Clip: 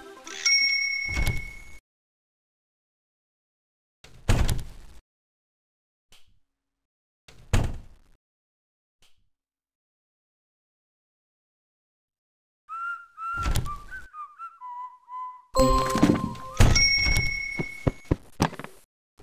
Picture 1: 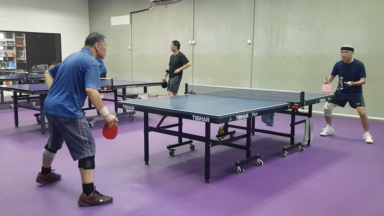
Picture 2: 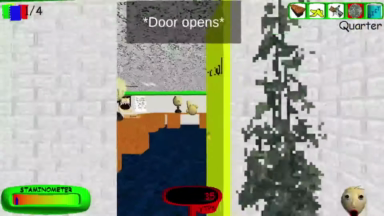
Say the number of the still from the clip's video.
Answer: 2